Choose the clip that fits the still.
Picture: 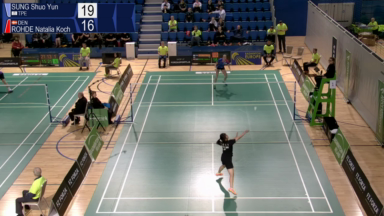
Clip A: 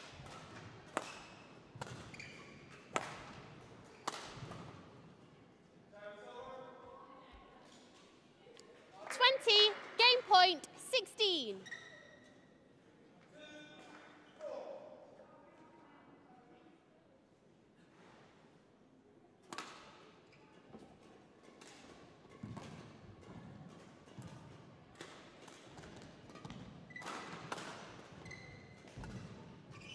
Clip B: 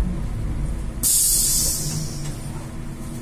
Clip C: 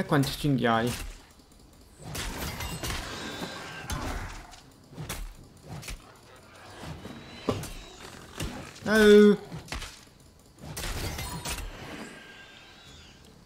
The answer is A